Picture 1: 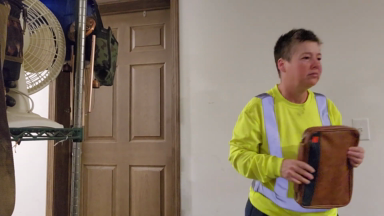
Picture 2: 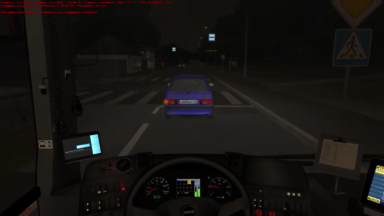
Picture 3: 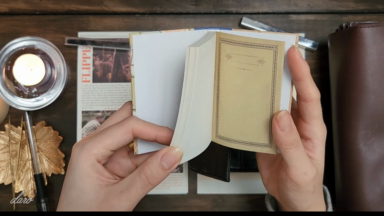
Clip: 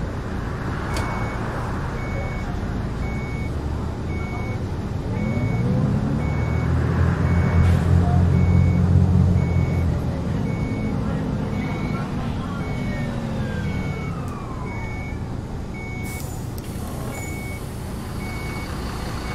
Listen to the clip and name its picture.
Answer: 2